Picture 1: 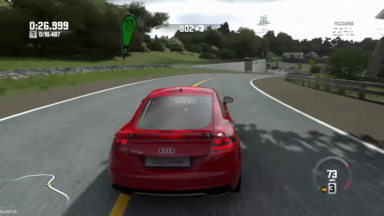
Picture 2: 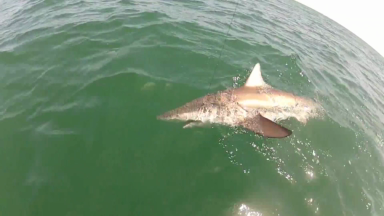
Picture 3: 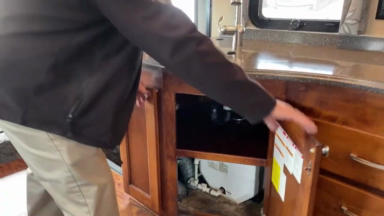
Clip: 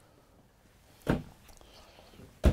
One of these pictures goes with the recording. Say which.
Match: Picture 3